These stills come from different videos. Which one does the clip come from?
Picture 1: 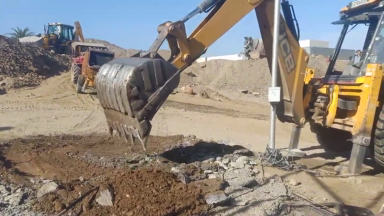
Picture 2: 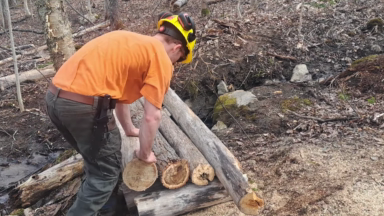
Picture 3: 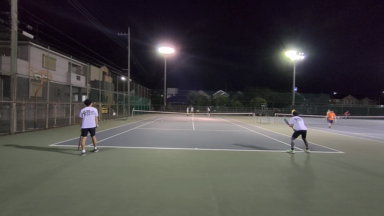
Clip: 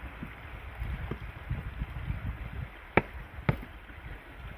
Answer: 2